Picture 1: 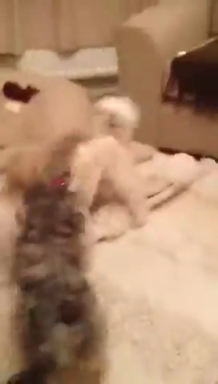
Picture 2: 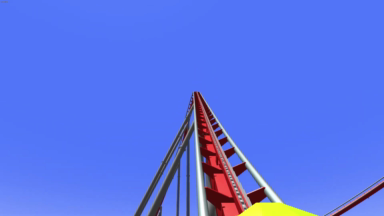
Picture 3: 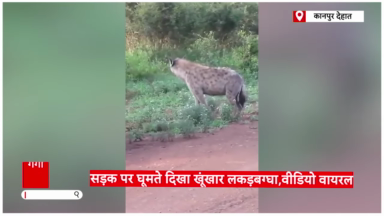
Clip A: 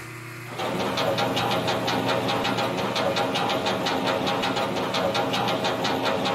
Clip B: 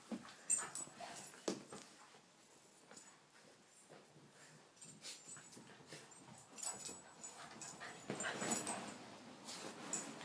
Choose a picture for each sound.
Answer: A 2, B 1